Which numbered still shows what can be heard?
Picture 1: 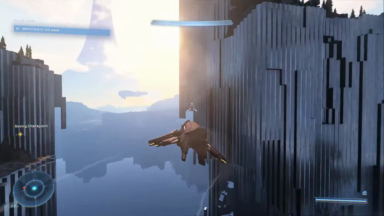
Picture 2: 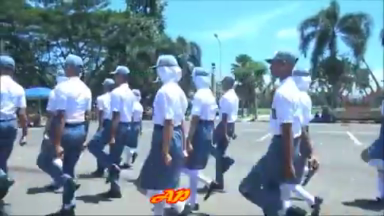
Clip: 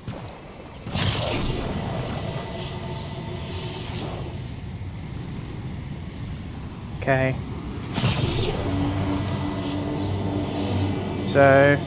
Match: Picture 1